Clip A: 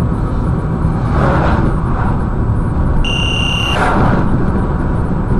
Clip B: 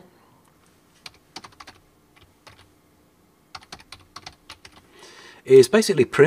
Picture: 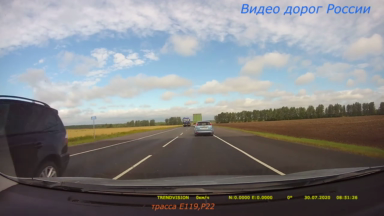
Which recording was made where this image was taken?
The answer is A